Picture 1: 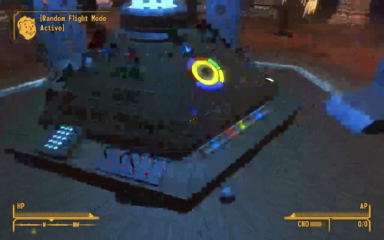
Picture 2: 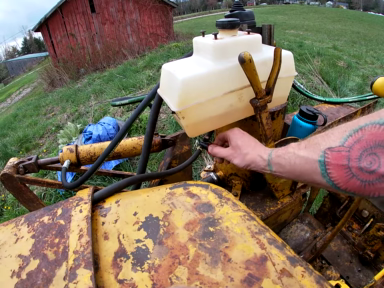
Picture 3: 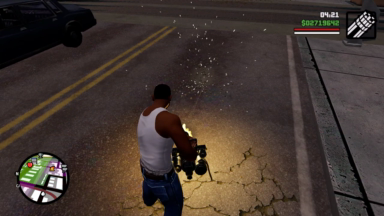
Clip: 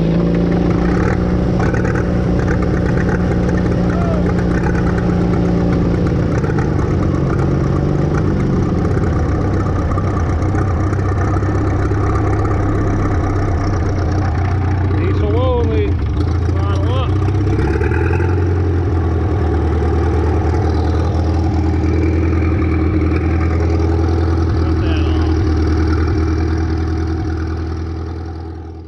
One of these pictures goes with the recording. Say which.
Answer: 2